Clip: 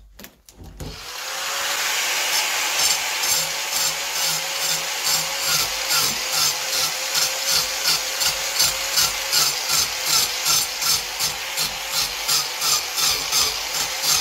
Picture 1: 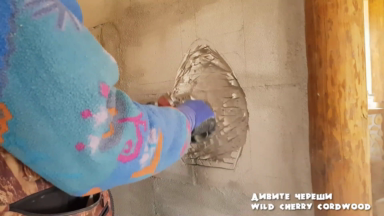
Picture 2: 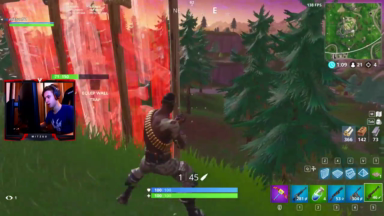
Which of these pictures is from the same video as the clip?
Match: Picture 1